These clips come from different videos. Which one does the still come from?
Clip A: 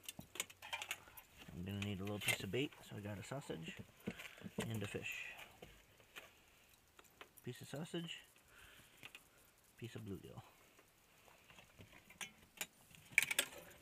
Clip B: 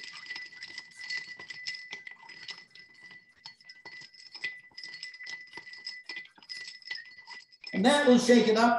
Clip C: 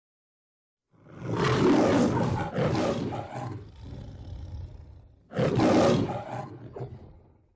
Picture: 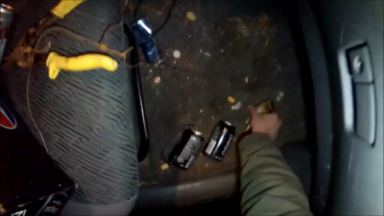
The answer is A